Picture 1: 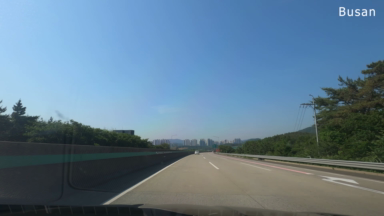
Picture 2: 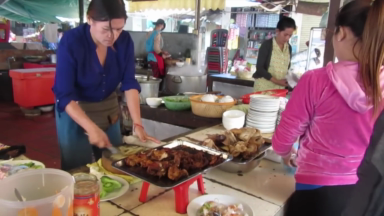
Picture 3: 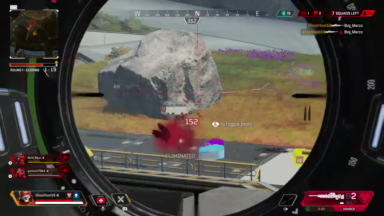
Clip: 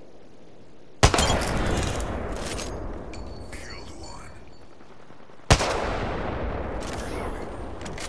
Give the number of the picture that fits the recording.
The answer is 3